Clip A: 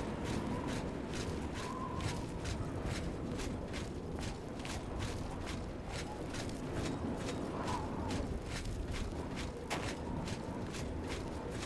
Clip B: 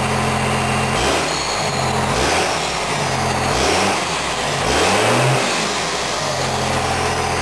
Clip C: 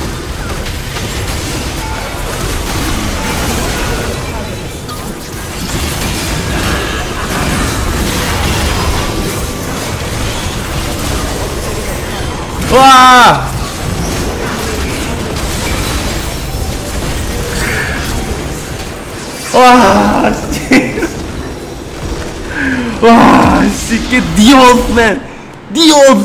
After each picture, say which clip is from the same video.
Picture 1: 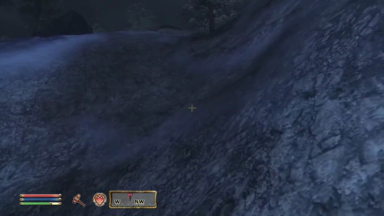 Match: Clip A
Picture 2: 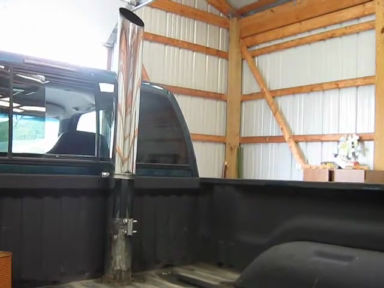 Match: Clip B